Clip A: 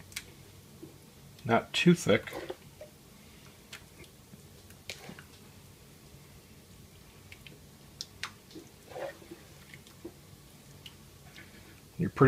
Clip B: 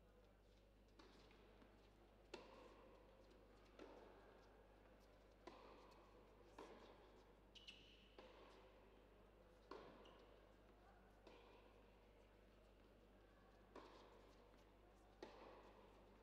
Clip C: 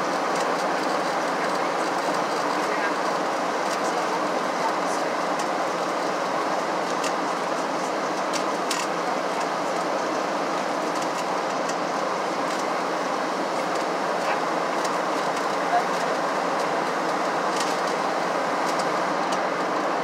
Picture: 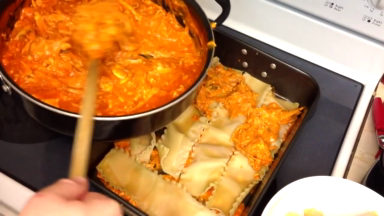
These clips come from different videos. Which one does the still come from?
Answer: A